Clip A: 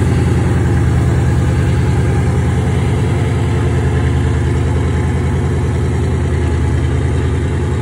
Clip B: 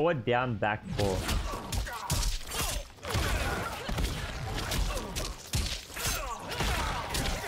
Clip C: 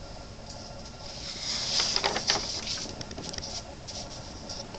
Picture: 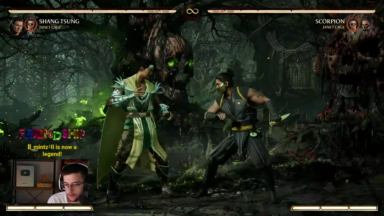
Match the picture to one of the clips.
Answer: B